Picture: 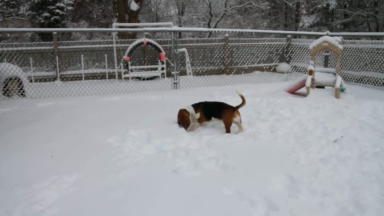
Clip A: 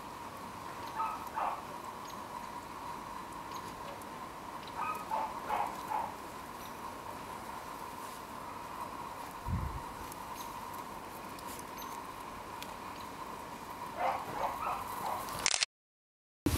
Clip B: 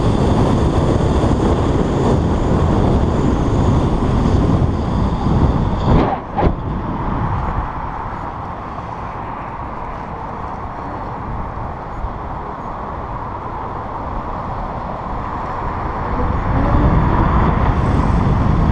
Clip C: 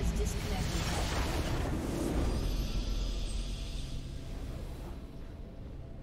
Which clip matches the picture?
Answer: A